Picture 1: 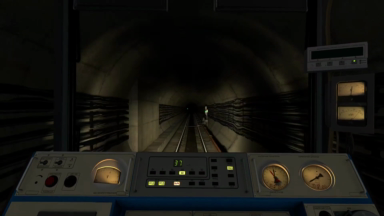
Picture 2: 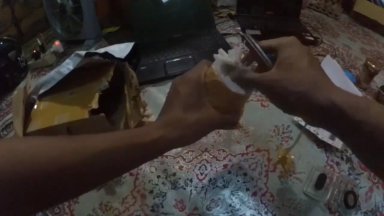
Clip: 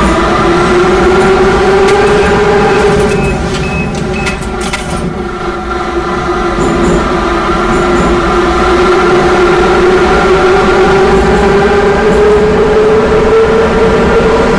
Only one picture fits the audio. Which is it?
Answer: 1